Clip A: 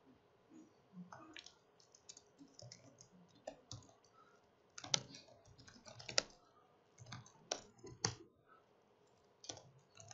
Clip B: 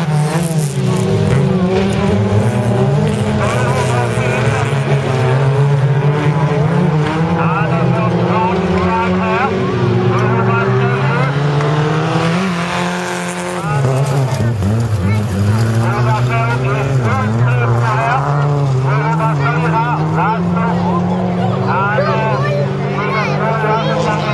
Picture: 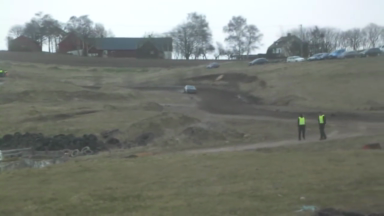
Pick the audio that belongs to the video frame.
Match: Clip B